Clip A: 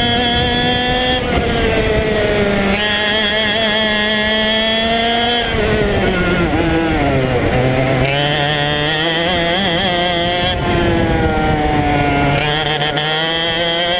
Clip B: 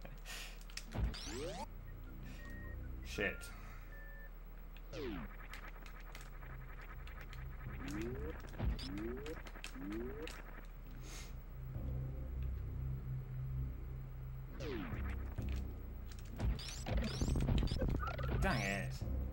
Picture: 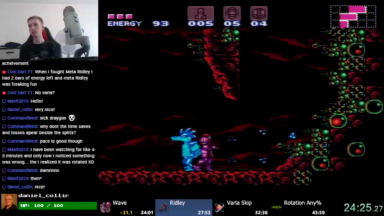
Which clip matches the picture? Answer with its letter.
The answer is B